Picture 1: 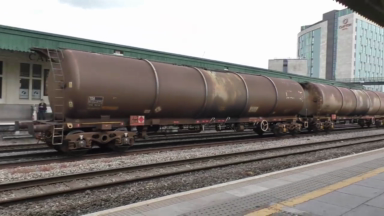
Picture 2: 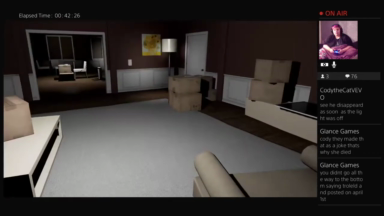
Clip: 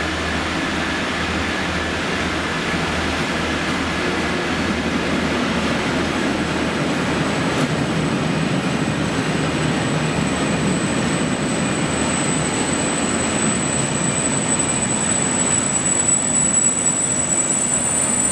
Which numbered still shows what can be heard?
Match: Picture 1